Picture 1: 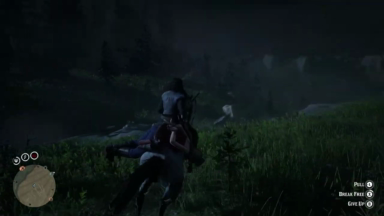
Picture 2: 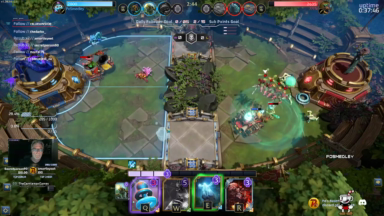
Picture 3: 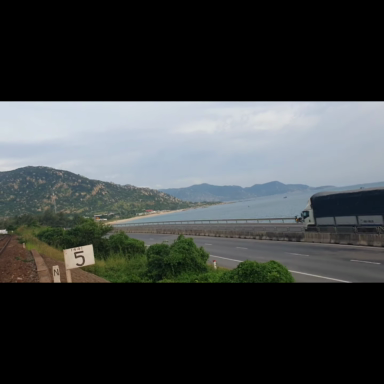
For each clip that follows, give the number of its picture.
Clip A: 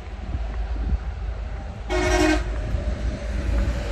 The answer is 3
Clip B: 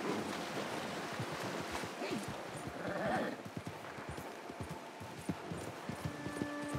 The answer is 1